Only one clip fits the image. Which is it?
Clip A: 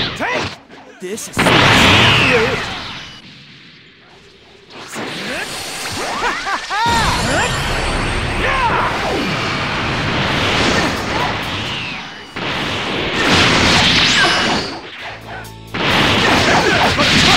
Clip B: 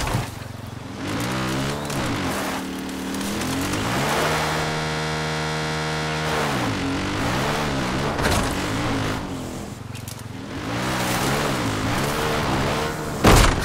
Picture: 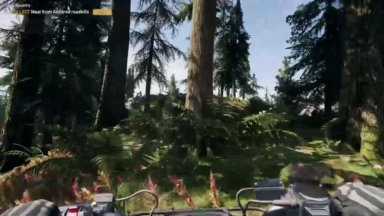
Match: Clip B